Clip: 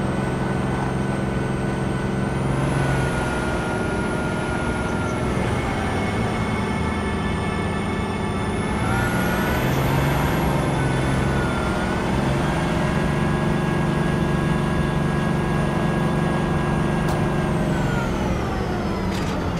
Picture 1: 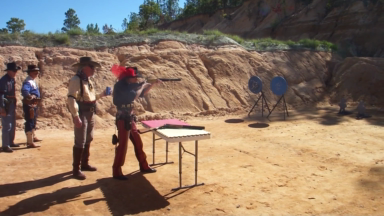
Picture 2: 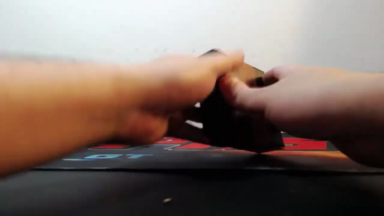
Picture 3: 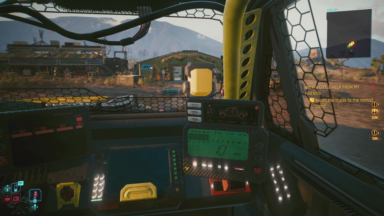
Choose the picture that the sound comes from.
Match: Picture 3